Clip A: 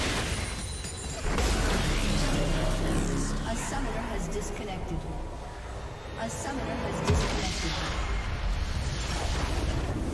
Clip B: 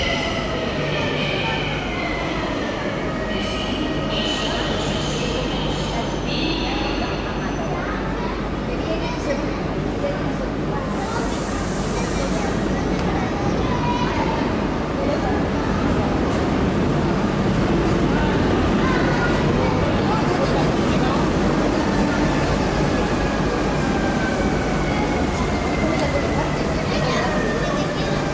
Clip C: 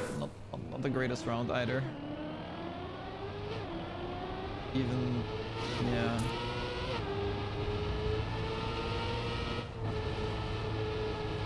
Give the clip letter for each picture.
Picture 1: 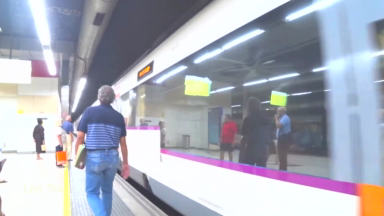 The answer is B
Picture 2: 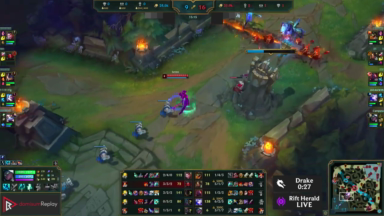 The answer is A